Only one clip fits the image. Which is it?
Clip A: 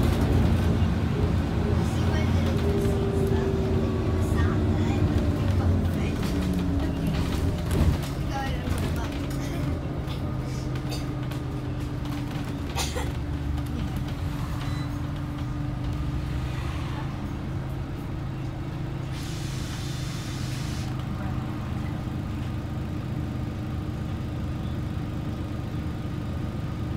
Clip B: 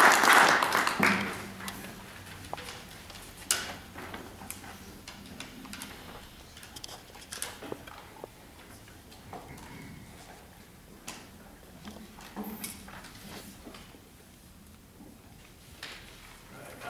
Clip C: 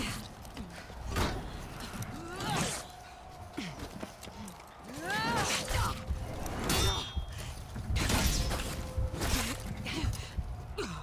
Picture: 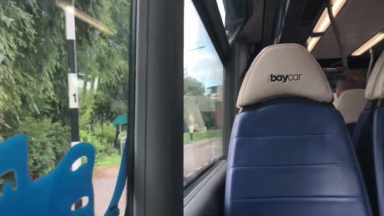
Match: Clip A